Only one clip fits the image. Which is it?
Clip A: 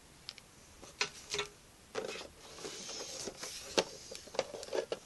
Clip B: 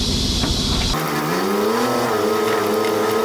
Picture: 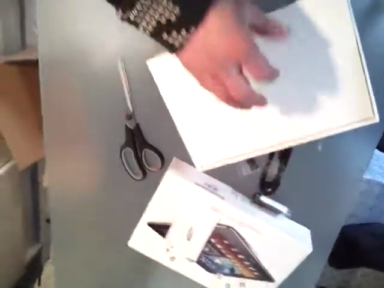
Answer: A